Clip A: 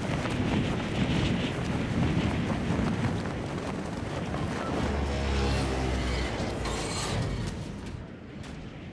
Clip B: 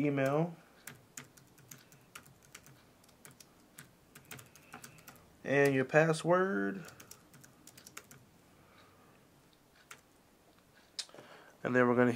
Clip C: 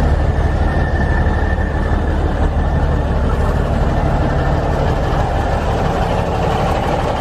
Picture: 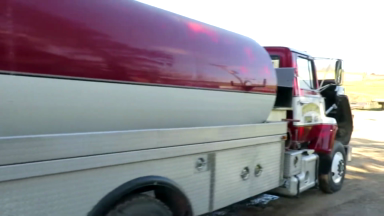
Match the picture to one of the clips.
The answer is C